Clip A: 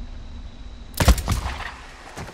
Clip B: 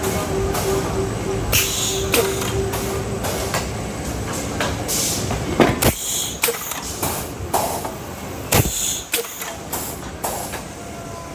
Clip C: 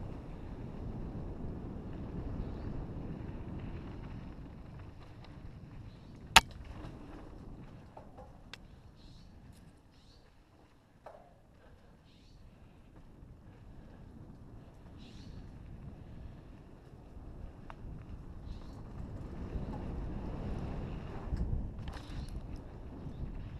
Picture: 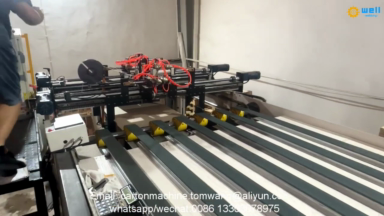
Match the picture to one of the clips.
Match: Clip B